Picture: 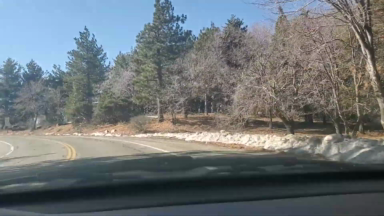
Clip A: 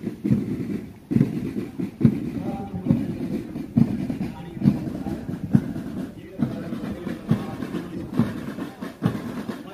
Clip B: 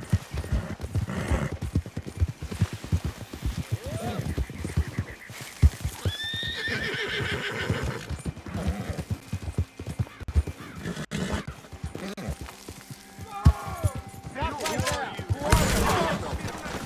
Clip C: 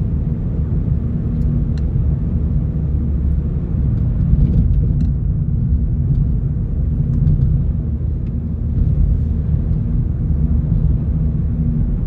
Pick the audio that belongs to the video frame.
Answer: C